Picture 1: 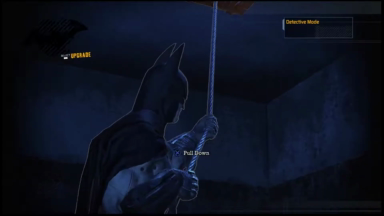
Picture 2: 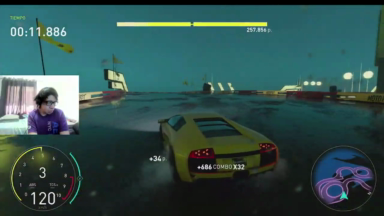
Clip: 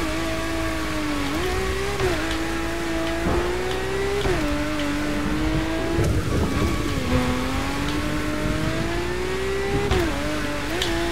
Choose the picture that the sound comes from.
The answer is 2